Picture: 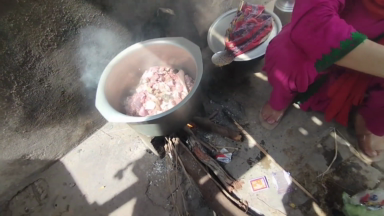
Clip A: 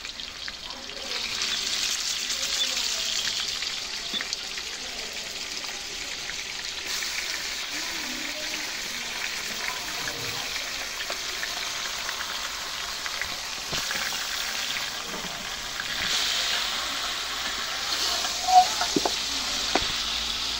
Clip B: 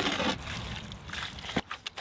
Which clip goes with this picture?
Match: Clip A